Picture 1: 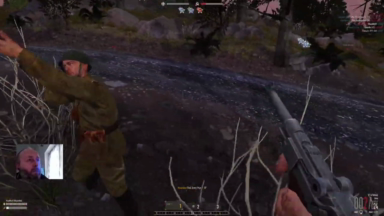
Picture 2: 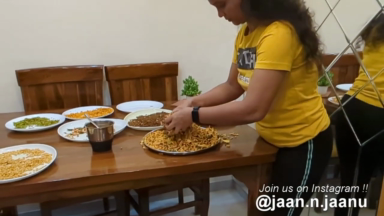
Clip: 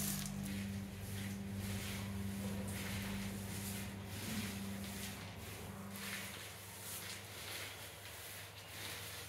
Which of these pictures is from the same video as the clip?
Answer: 2